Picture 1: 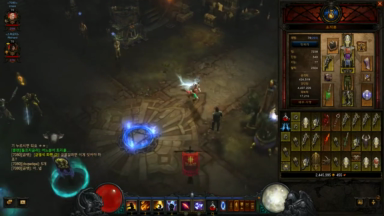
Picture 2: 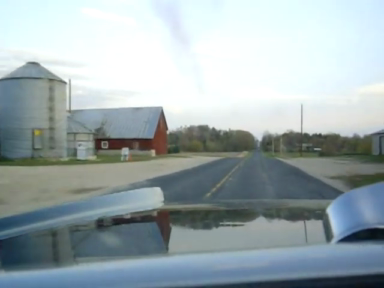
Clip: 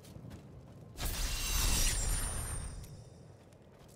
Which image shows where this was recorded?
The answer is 1